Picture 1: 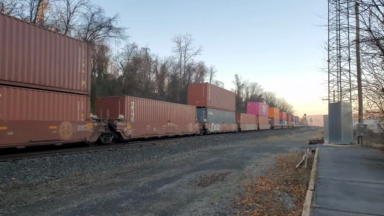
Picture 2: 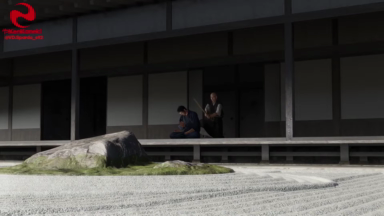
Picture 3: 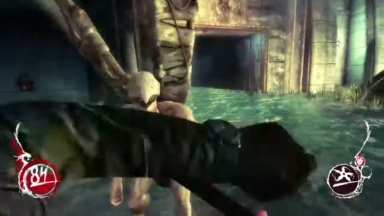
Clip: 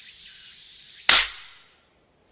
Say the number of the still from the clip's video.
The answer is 2